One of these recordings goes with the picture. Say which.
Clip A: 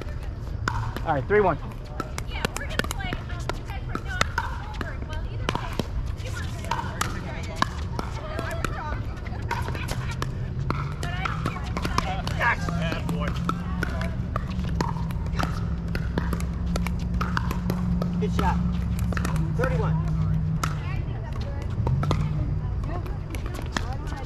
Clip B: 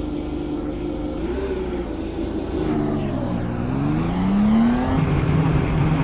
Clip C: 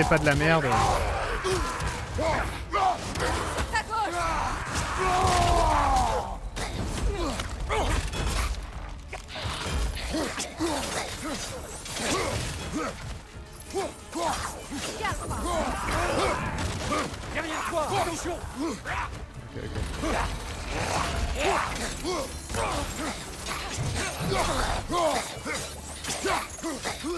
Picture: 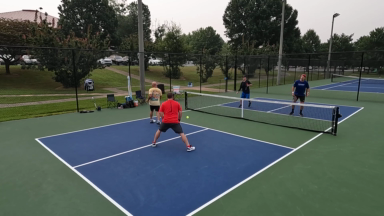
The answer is A